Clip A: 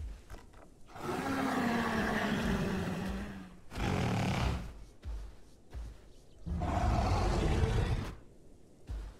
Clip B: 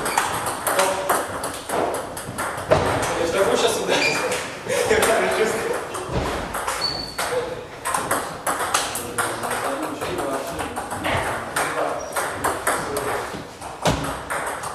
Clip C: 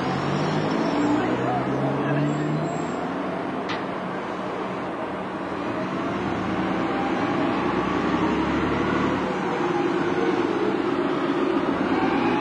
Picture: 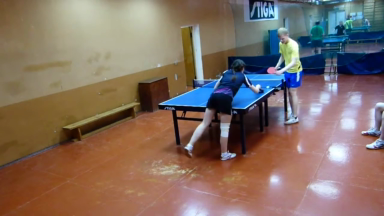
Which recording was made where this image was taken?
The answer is B